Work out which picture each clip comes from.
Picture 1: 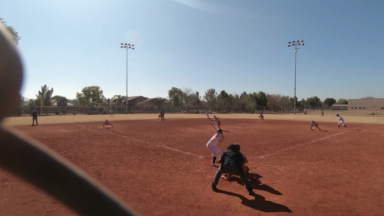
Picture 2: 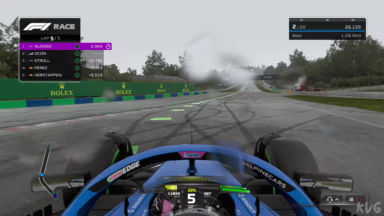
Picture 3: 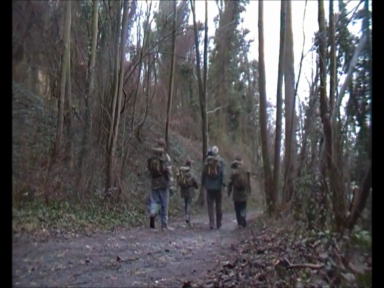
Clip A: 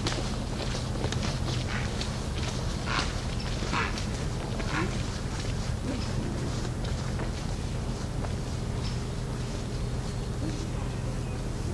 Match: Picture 3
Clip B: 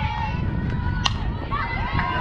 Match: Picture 1